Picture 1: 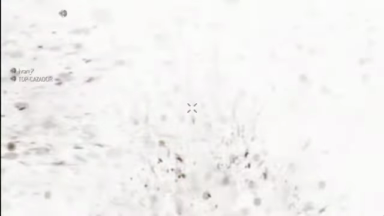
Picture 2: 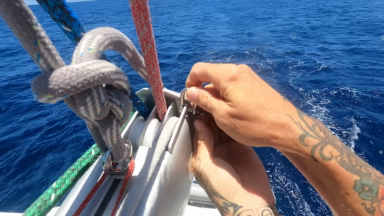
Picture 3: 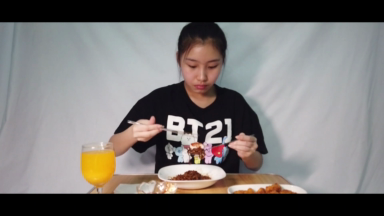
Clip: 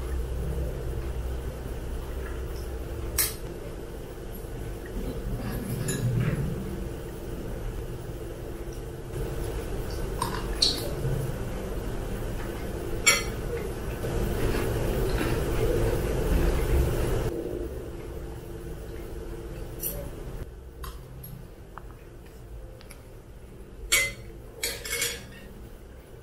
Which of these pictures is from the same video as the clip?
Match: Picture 3